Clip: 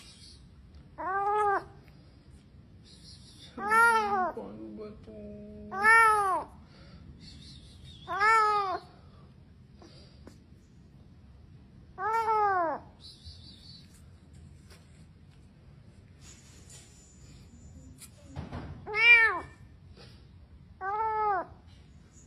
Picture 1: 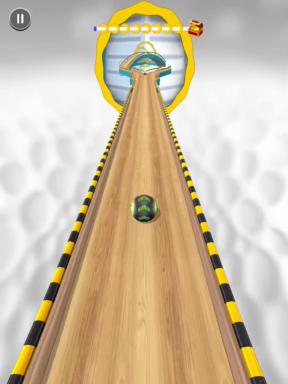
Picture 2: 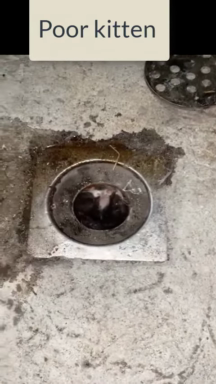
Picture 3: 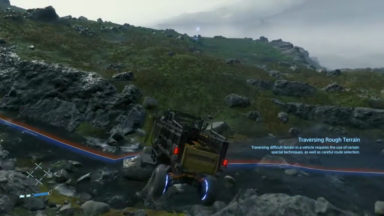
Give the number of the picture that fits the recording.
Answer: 2